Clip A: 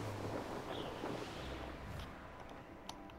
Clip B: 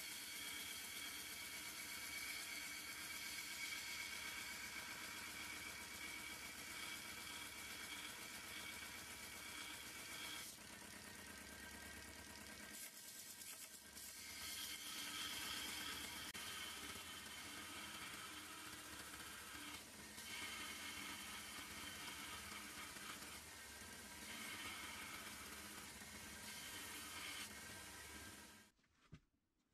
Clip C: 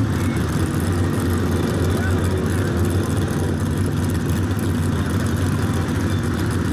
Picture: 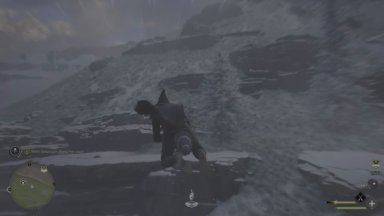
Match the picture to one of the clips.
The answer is A